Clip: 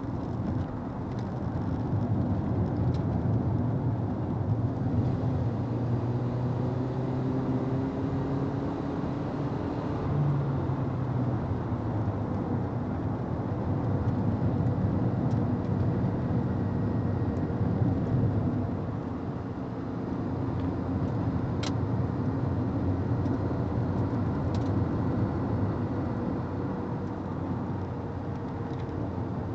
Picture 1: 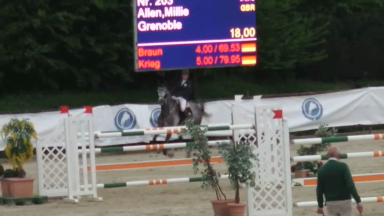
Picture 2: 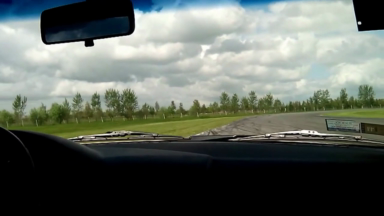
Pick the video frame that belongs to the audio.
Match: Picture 2